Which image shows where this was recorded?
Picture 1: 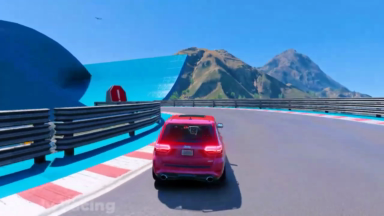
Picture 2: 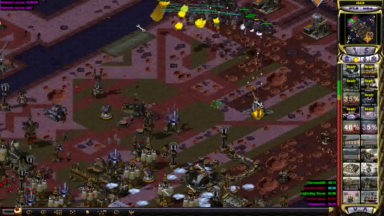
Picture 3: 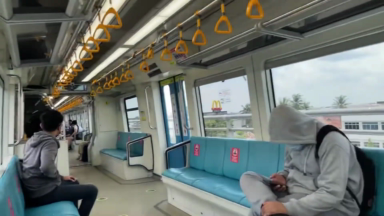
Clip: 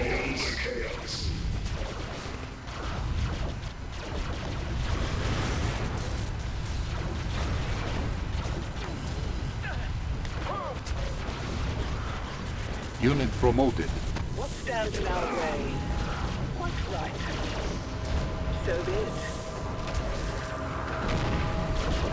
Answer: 2